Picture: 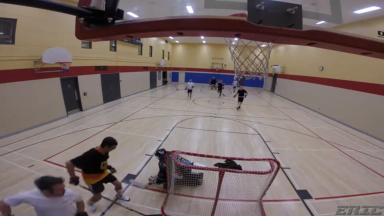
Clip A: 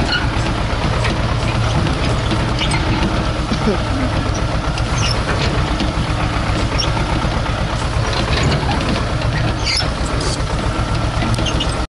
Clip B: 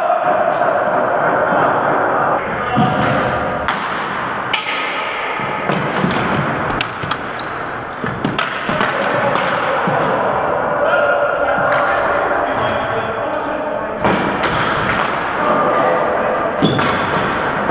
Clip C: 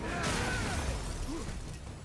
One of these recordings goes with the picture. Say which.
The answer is B